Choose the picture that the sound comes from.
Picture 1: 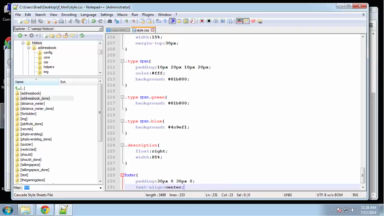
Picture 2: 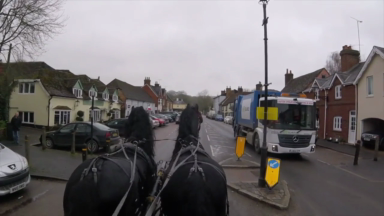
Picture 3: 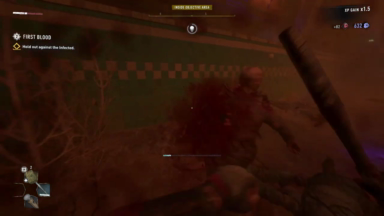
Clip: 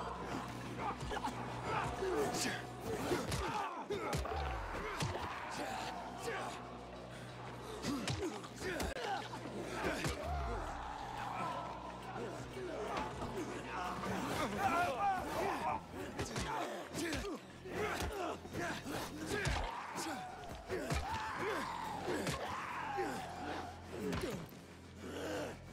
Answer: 3